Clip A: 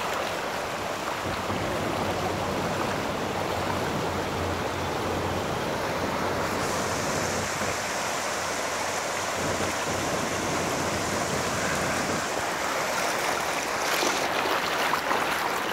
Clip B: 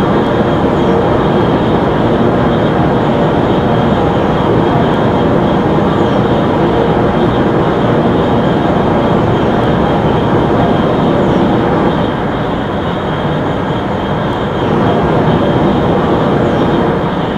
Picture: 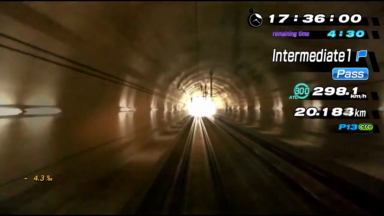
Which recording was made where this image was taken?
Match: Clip B